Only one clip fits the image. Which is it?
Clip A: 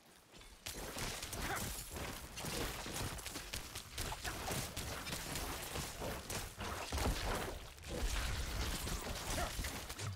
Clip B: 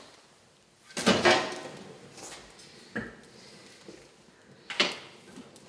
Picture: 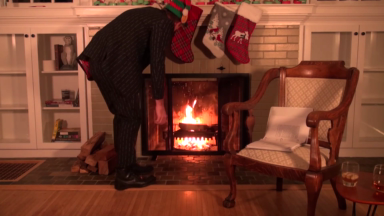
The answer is B